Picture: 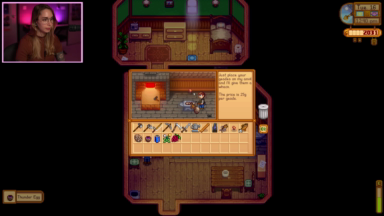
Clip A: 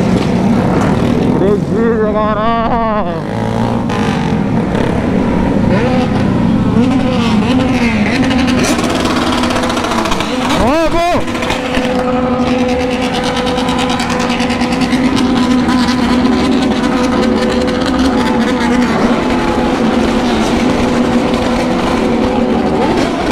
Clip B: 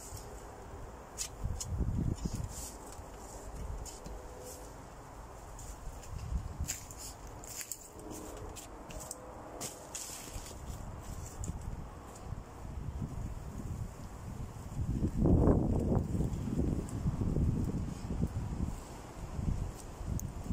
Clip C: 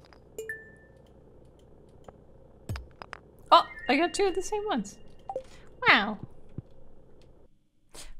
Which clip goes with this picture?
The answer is C